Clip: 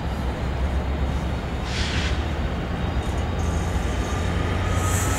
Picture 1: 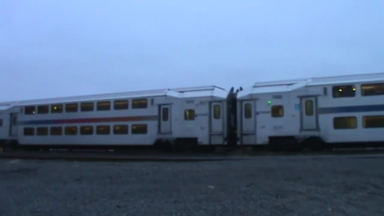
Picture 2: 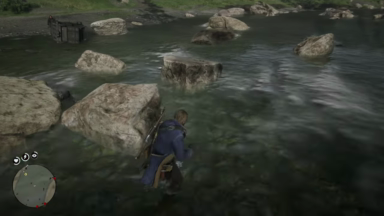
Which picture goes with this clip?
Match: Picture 1